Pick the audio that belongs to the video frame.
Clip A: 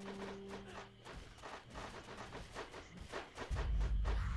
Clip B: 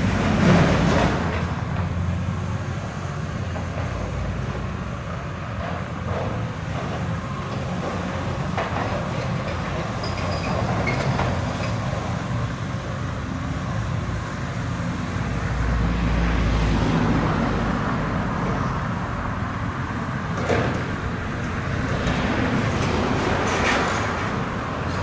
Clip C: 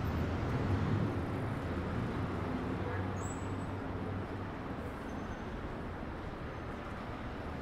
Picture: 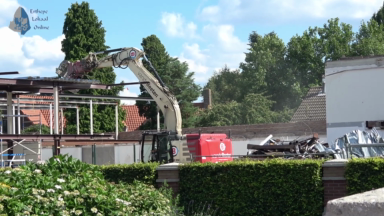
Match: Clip B